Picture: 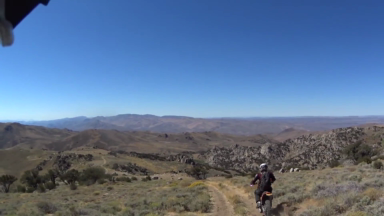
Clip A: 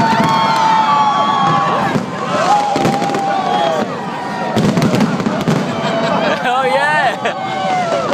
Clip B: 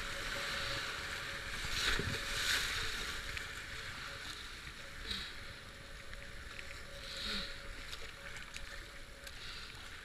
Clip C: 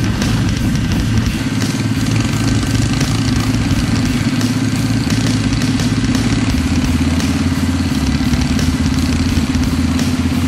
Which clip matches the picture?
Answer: C